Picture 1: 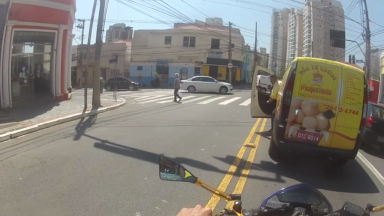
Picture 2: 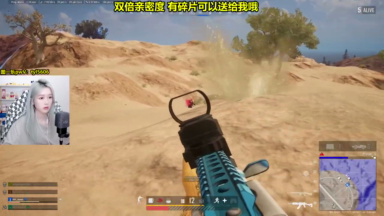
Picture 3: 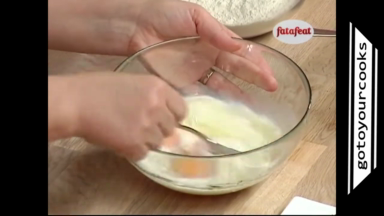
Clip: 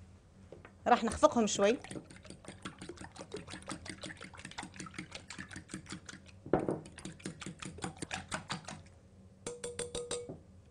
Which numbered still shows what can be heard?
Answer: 3